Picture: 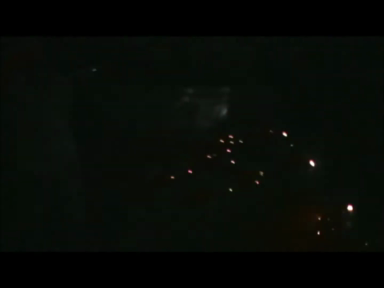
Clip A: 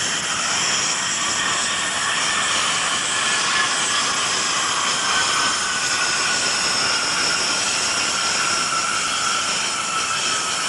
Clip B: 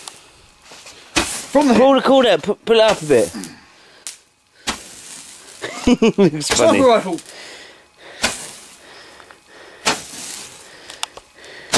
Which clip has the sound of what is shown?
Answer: B